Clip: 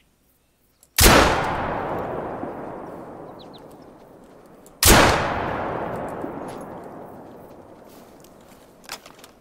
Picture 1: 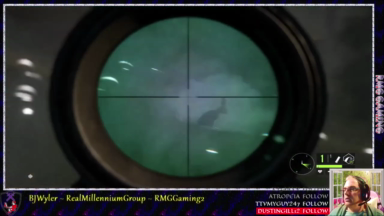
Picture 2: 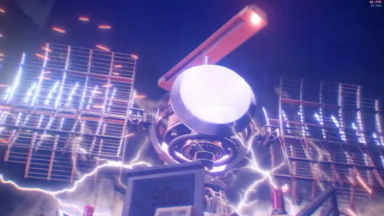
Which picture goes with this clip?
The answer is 1